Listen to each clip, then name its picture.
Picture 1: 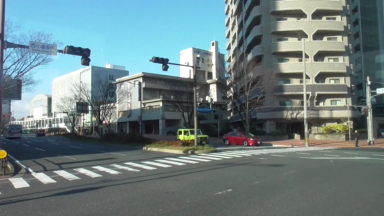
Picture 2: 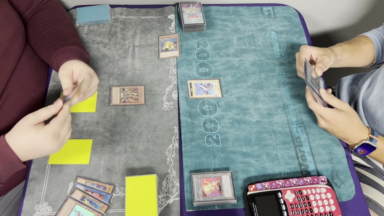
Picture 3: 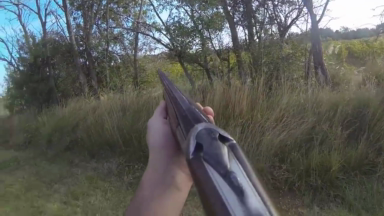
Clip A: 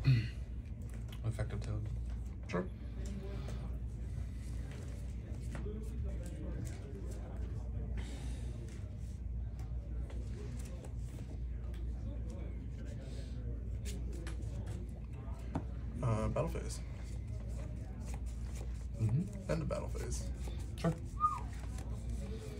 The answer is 2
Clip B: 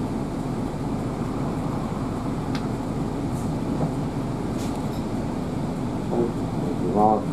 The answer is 1